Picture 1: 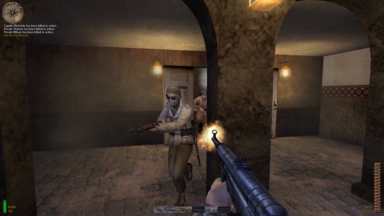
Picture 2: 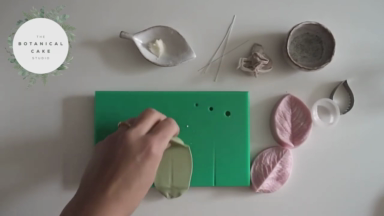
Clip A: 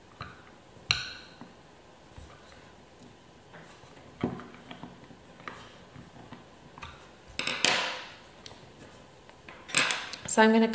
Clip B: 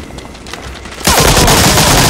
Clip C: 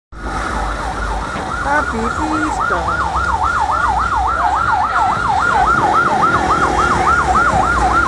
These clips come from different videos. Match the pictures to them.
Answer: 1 B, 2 A